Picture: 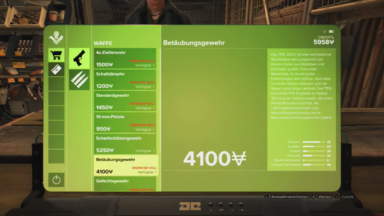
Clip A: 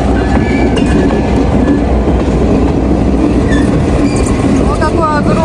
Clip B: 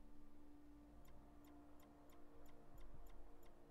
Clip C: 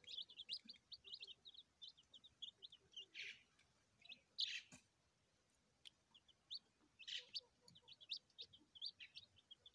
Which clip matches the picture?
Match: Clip B